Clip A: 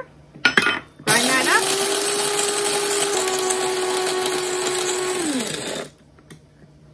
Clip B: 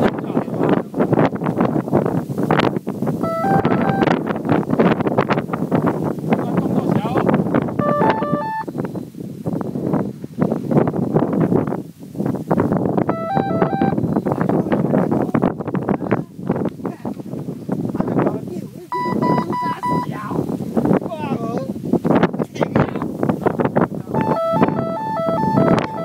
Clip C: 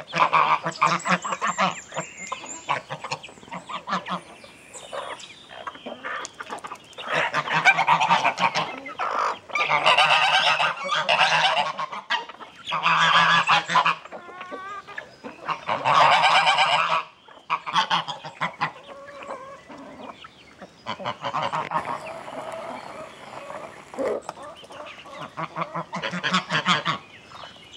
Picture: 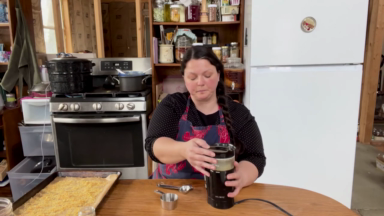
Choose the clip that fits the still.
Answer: A